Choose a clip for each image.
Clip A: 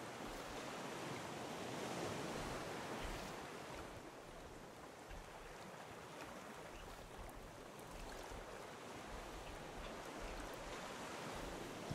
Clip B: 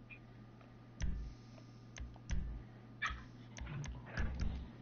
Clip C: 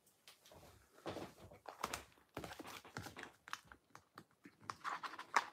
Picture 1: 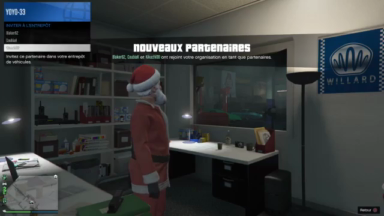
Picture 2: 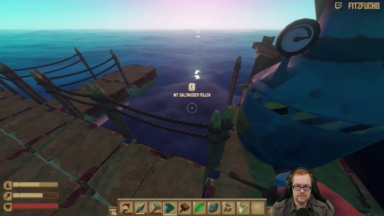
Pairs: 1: B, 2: A